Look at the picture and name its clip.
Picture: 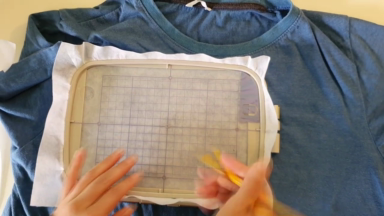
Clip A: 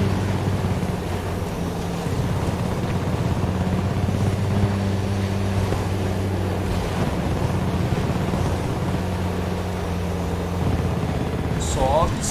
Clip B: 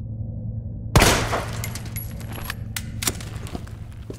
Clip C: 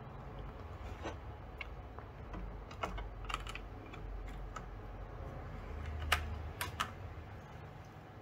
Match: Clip C